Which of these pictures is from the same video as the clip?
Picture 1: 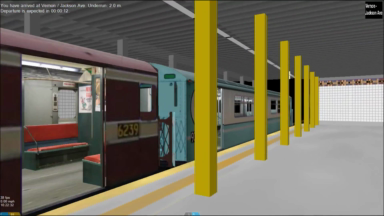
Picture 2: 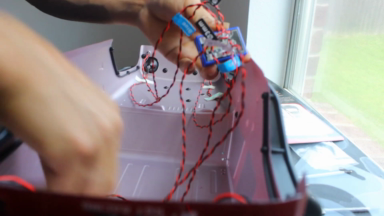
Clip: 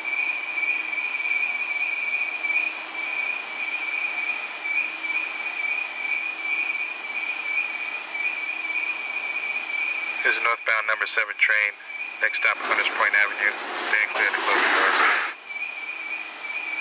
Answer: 1